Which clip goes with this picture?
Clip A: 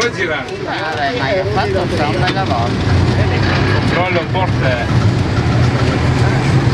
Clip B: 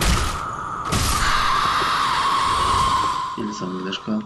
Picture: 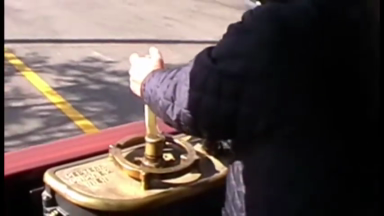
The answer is A